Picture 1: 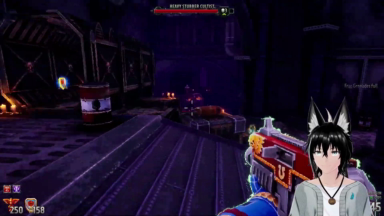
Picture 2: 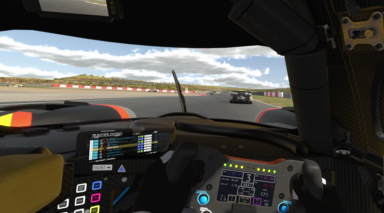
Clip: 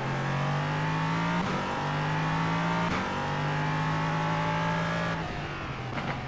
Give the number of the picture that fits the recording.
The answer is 2